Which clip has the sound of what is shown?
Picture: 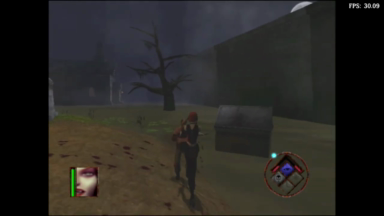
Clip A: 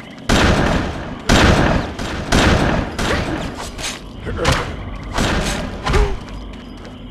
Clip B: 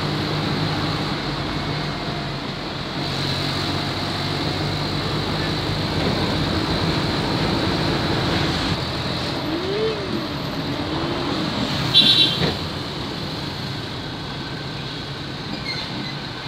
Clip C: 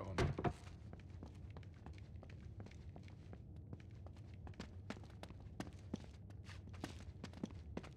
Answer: A